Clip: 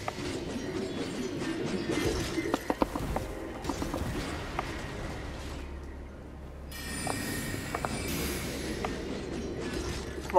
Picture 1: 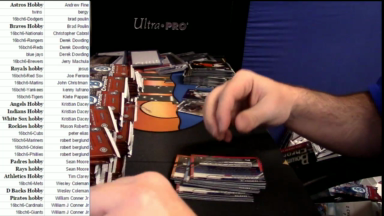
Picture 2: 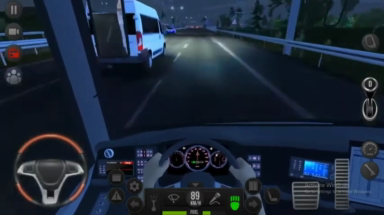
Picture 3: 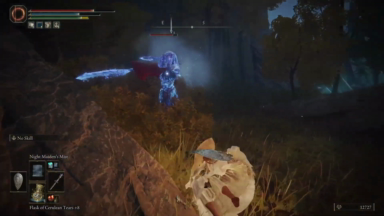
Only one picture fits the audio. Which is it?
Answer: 3